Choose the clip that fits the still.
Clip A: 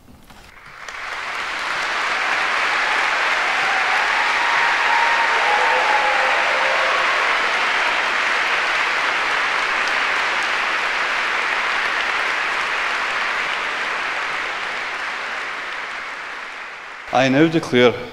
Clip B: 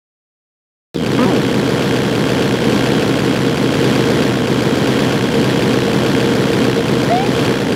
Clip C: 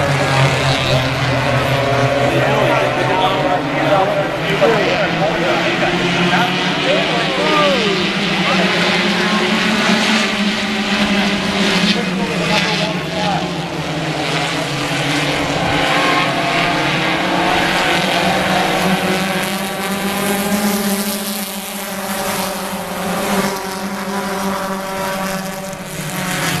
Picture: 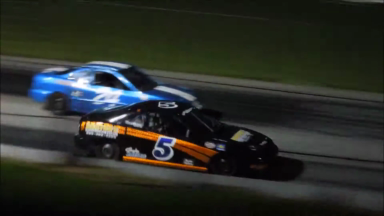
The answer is C